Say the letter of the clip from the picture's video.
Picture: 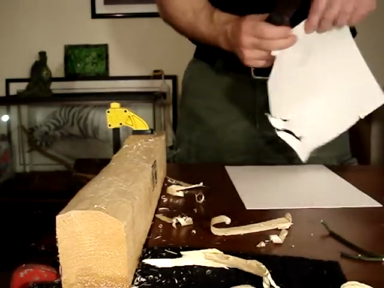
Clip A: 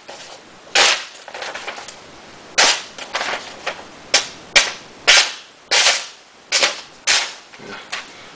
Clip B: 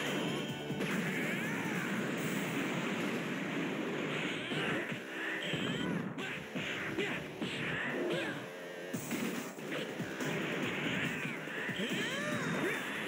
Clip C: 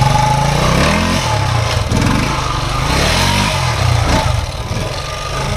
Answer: A